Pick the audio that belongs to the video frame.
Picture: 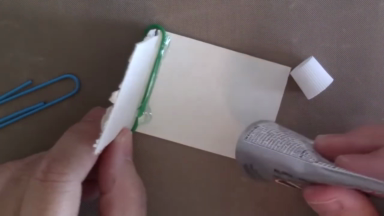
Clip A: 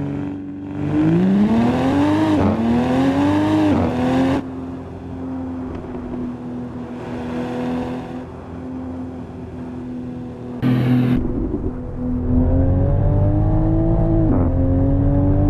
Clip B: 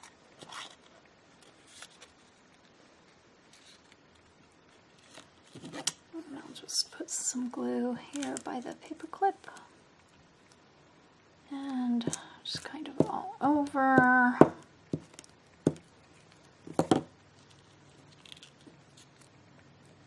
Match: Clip B